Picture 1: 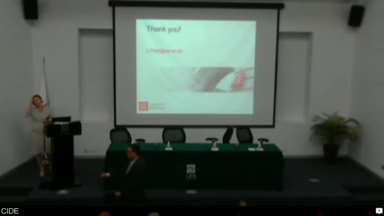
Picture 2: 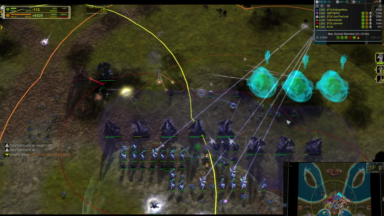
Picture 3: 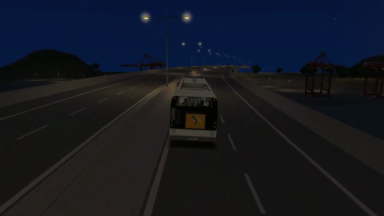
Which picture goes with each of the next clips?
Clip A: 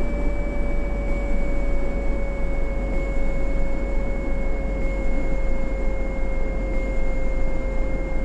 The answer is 3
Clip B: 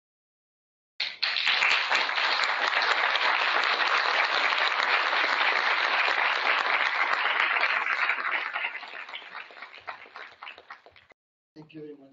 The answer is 1